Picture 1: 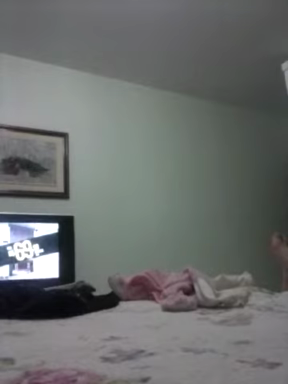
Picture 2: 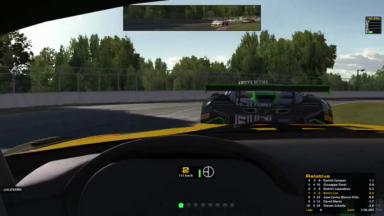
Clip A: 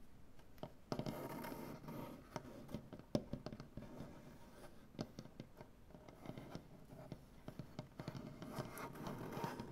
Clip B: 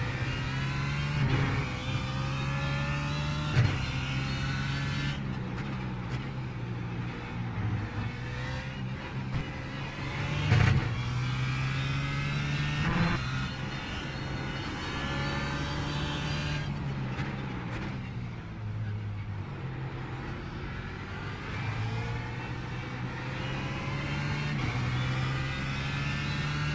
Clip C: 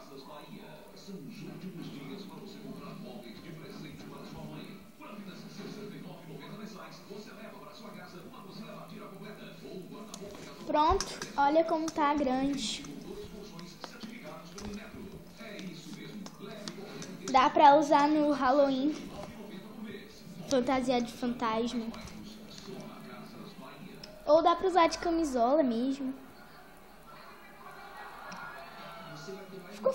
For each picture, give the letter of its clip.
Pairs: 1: C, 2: B